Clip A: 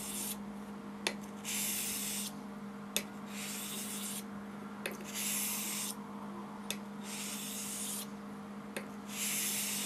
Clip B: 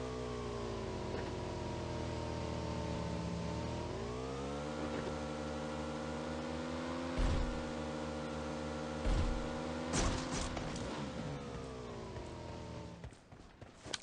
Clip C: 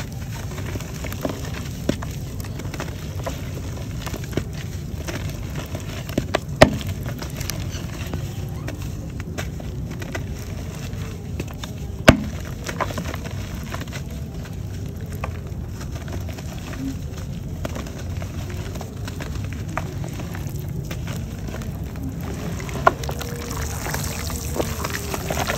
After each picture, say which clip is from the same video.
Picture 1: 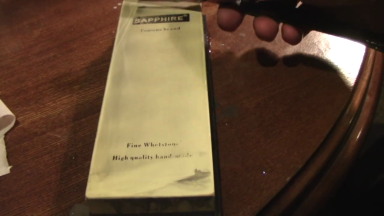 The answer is A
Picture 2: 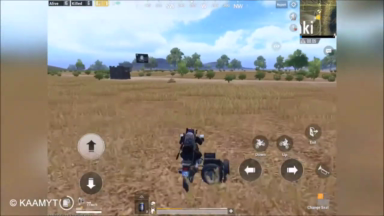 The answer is B